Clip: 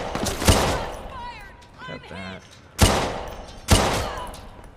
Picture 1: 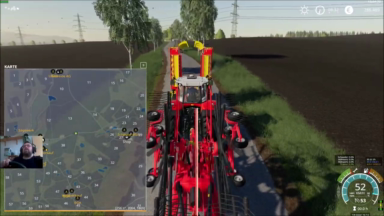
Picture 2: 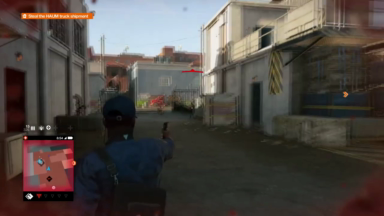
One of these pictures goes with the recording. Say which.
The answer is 2